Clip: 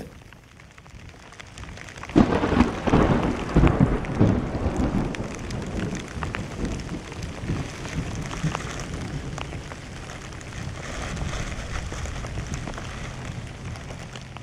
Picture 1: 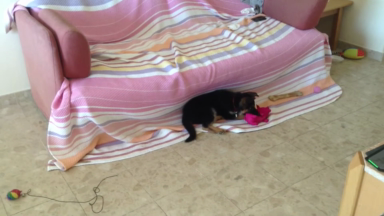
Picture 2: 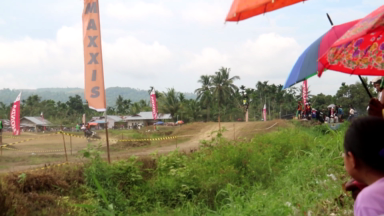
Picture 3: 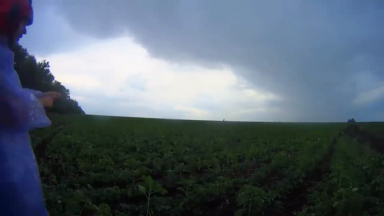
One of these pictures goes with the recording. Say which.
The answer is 3